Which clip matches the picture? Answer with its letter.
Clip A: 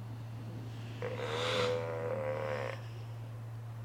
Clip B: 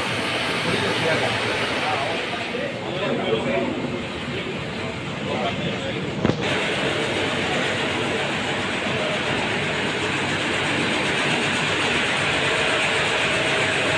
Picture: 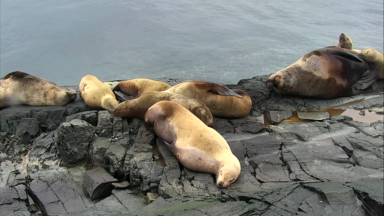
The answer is A